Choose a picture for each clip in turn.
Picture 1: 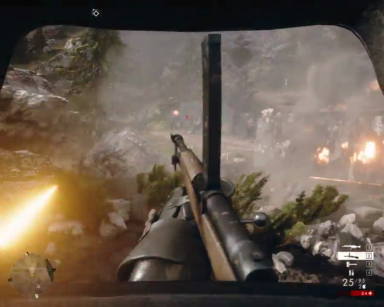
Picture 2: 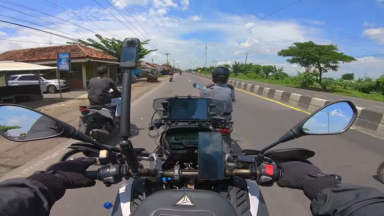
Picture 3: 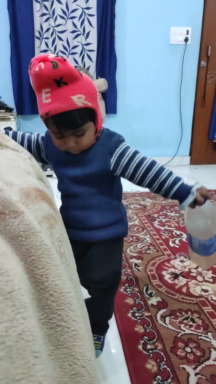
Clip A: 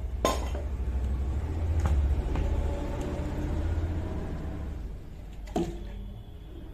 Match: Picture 3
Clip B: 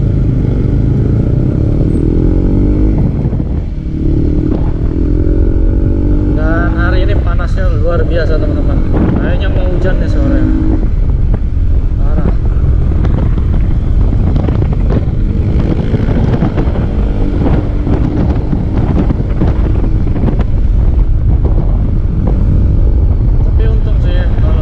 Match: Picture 2